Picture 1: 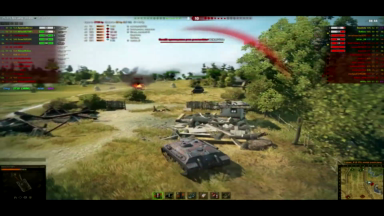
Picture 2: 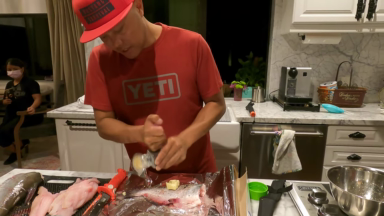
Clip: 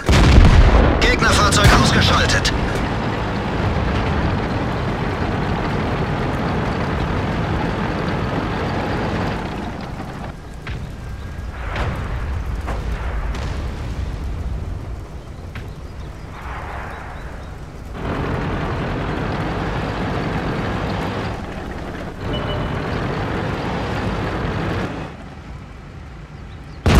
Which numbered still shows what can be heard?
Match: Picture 1